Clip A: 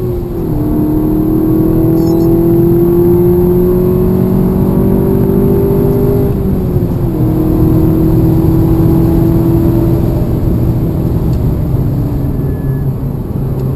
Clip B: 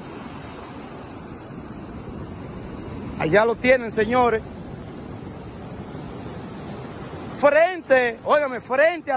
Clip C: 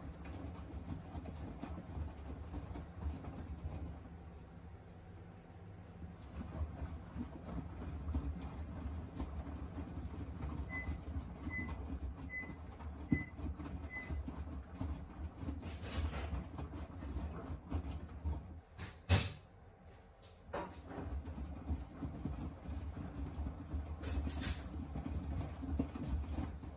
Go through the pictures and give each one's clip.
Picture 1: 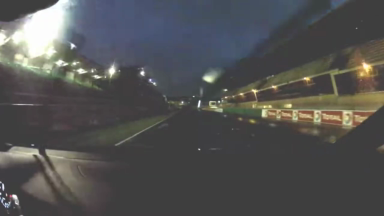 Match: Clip A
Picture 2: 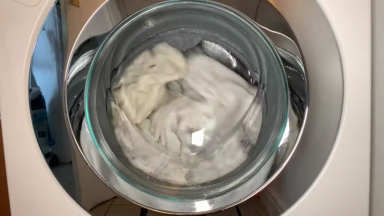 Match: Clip C